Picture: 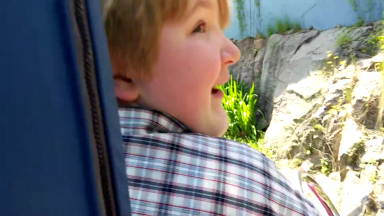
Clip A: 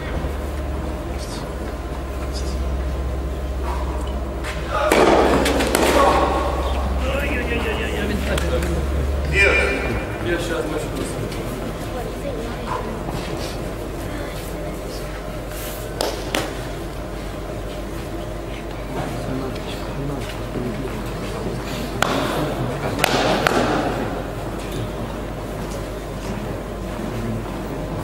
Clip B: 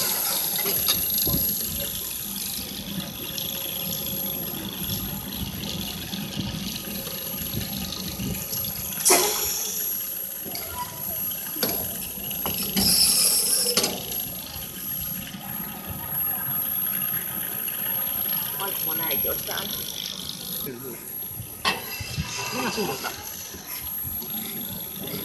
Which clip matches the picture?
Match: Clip B